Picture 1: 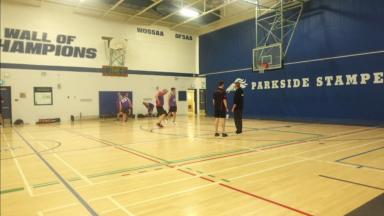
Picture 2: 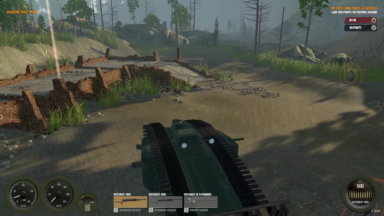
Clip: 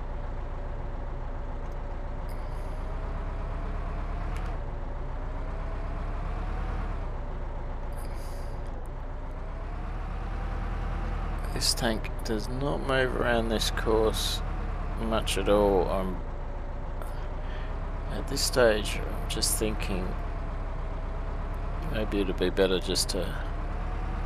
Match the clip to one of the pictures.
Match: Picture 2